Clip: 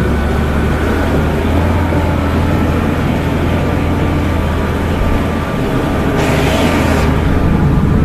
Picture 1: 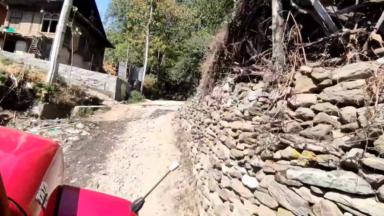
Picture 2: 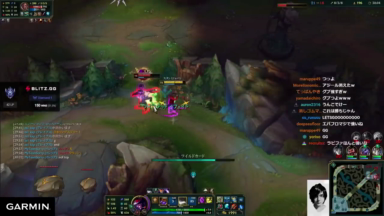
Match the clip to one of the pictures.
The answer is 1